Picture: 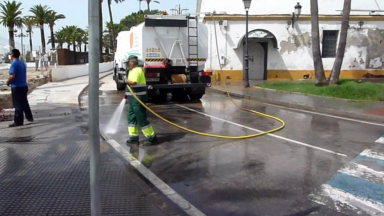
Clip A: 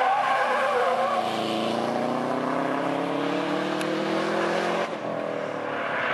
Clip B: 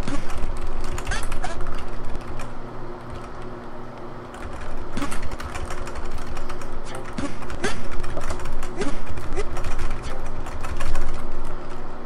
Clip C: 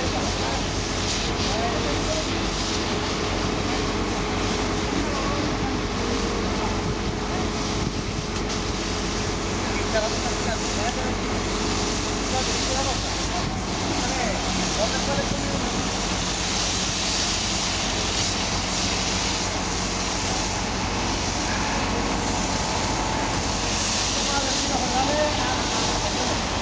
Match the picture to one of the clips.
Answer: C